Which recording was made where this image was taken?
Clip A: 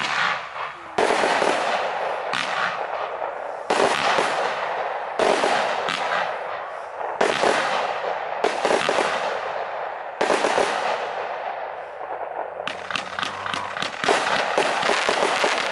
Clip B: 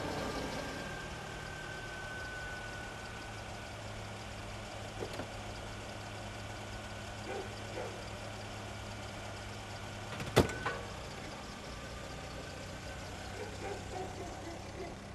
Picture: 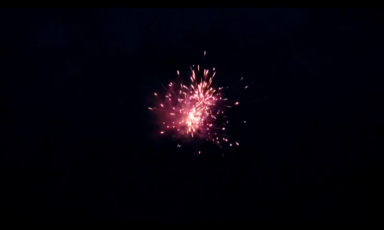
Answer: A